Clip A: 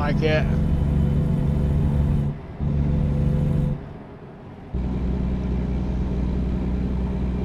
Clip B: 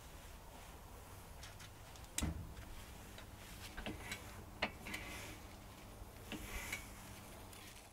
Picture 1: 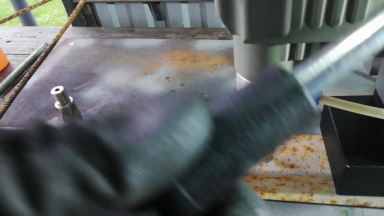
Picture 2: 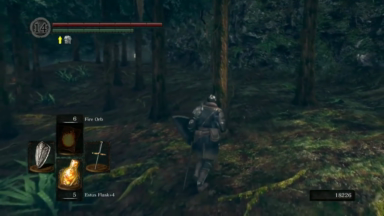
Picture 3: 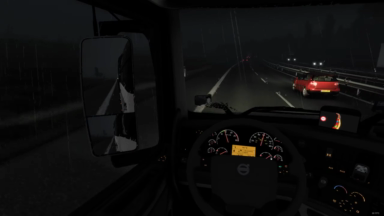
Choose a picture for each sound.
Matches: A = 3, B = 1